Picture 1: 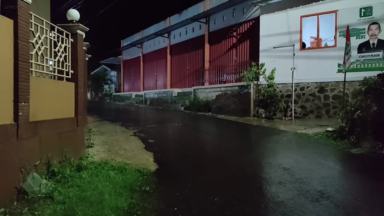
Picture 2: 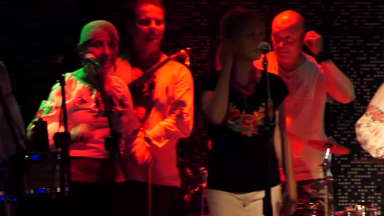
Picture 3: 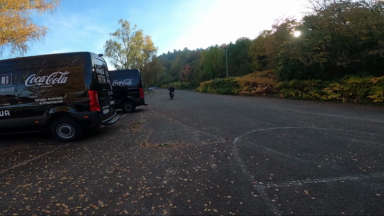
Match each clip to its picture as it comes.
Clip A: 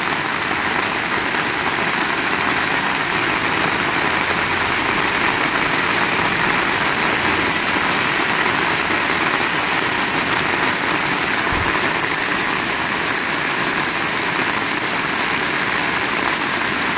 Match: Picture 1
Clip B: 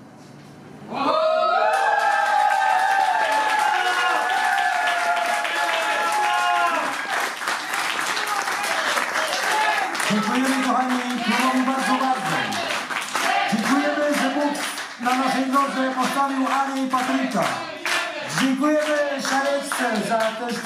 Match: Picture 2